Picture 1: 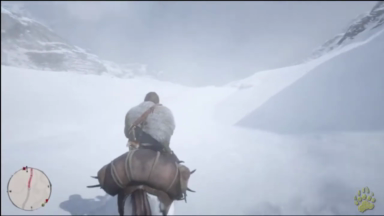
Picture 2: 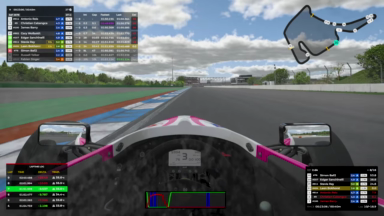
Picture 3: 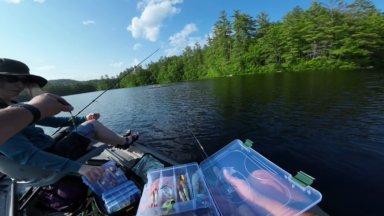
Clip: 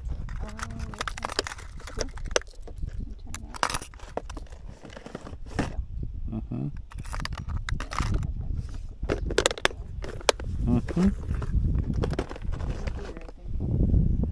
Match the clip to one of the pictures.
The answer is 3